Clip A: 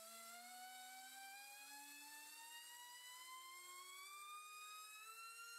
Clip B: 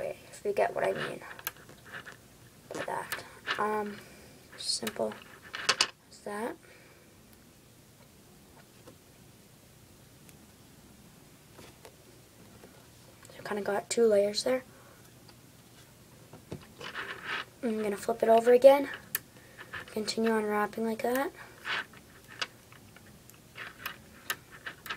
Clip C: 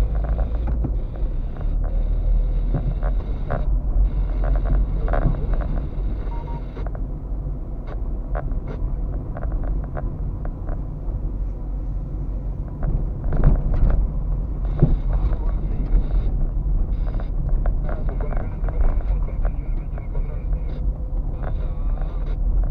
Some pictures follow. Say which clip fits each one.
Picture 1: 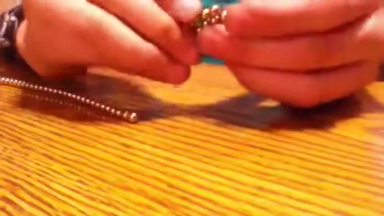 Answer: B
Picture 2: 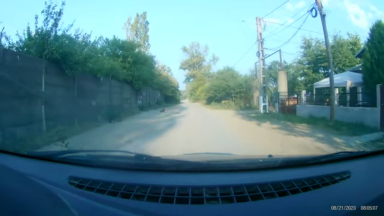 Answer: C